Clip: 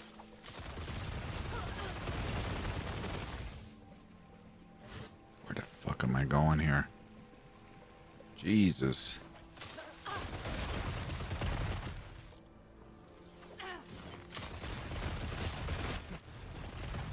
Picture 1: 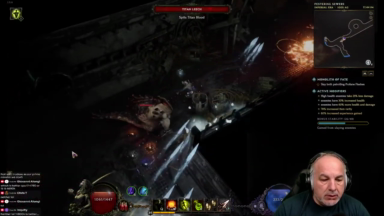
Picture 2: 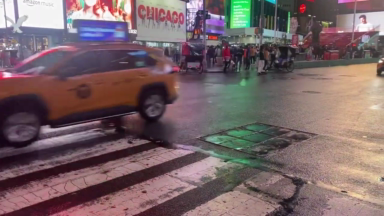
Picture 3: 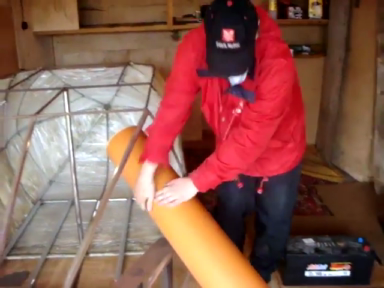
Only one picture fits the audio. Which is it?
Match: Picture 1